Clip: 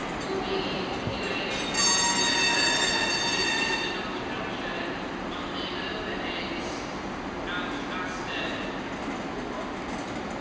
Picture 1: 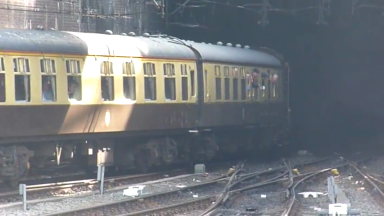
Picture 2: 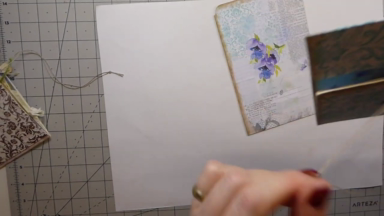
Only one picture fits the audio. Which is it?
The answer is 1